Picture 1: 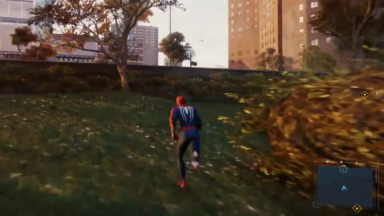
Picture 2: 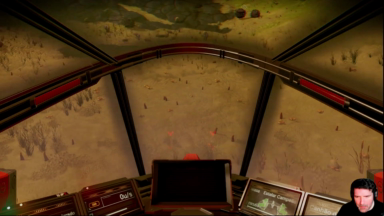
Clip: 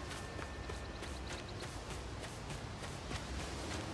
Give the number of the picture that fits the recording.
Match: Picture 1